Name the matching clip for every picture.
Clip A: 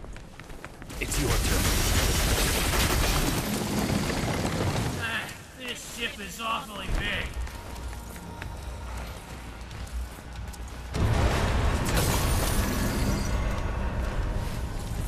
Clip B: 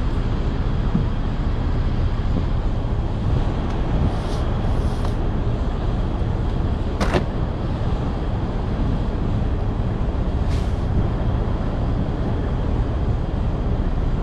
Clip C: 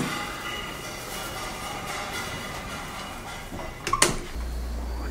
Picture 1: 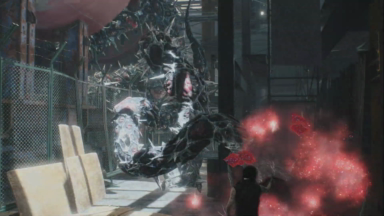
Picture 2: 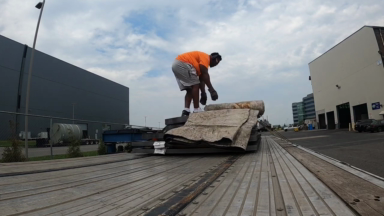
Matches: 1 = A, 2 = B